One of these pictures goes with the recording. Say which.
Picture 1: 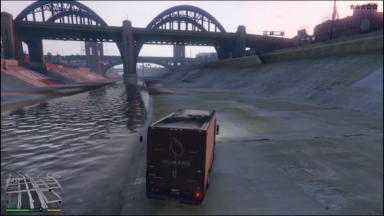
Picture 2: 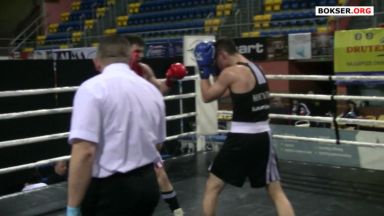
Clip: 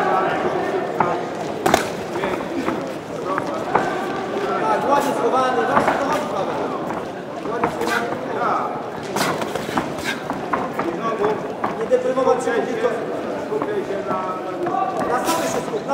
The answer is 2